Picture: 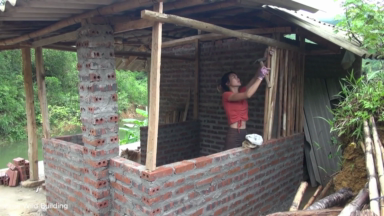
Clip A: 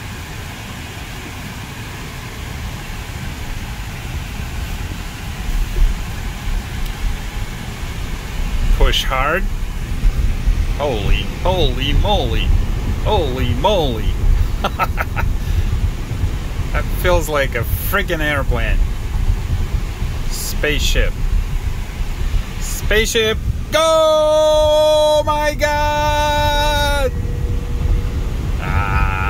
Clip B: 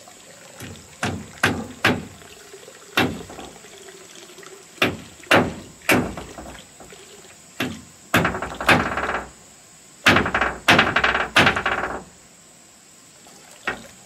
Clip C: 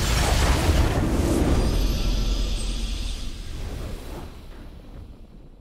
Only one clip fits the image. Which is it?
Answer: B